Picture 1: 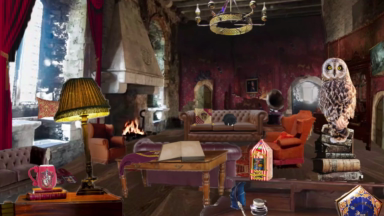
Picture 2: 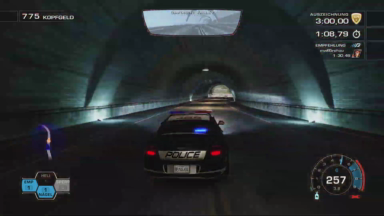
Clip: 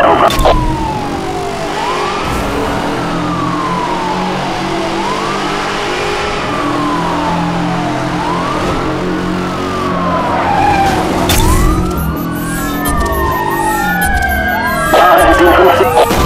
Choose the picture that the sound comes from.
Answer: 2